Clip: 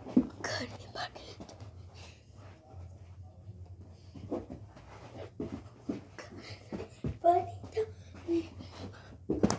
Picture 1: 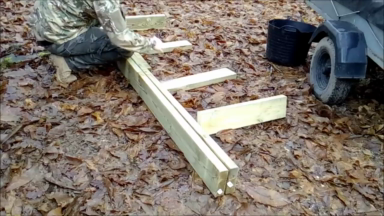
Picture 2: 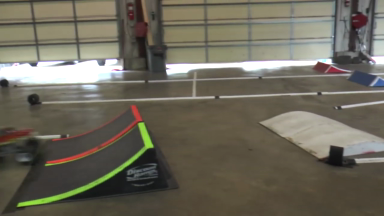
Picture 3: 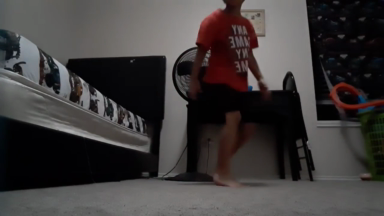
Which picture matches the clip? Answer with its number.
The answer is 3